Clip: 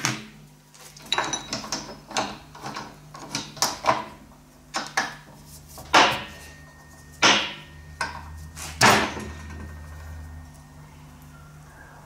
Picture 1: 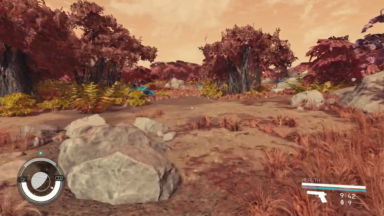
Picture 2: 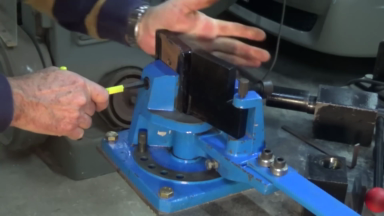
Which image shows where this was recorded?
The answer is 2